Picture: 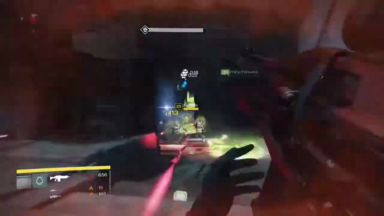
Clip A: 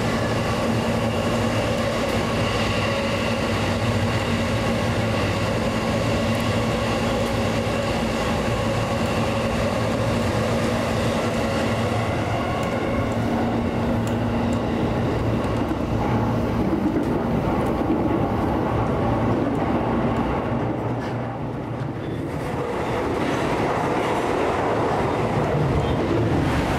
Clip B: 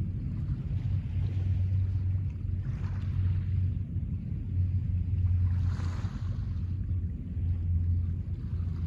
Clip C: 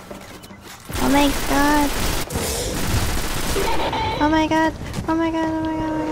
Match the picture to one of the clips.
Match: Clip C